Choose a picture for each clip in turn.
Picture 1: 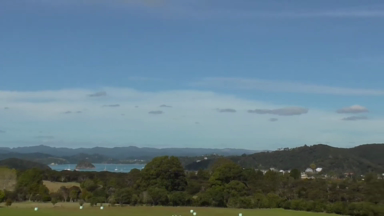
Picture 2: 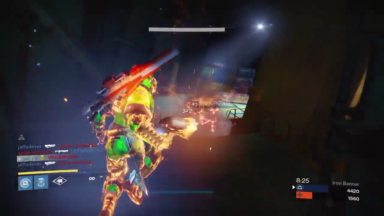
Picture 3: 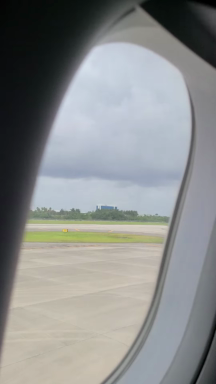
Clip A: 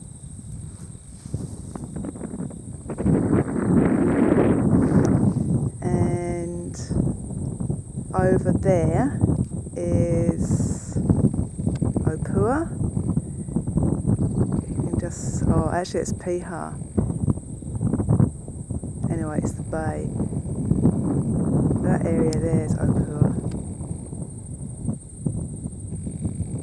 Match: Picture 1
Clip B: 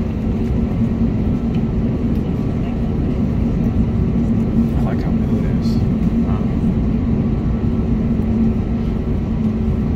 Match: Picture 3